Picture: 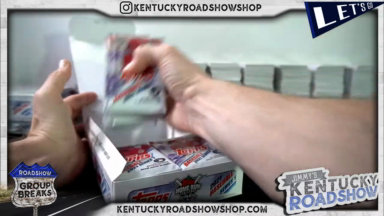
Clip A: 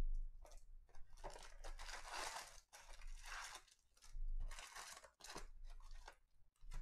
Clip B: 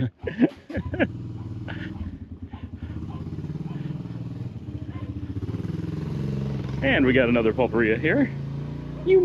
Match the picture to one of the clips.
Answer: A